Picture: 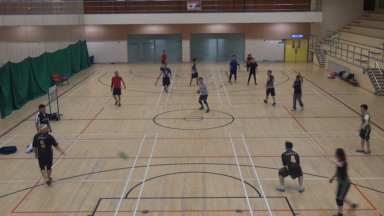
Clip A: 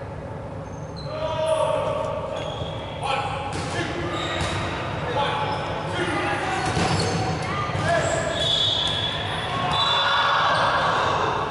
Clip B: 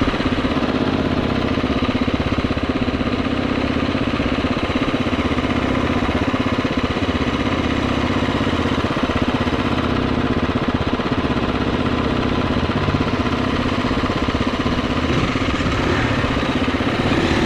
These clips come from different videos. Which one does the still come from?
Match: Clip A